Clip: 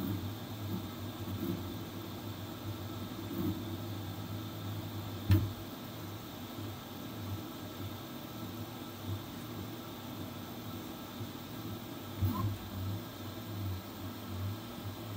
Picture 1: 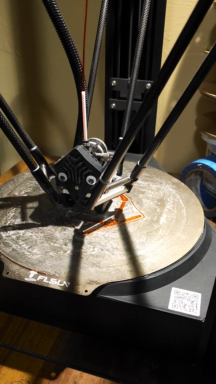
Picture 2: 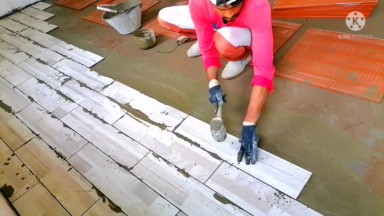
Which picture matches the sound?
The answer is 1